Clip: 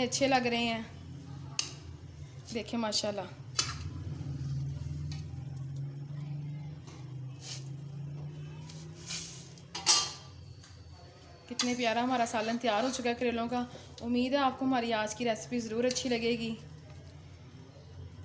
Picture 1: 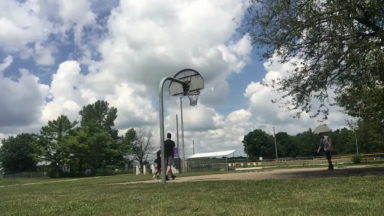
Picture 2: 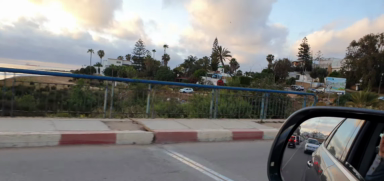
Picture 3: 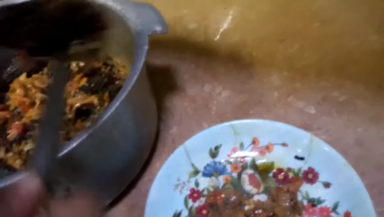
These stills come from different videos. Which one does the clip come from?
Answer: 3